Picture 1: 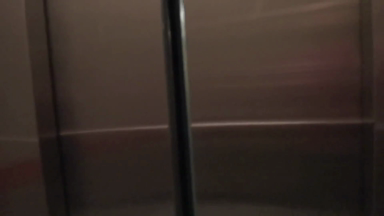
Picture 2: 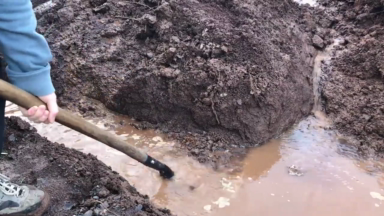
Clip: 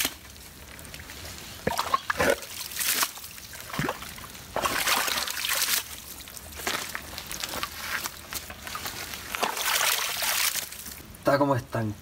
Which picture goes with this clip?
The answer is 2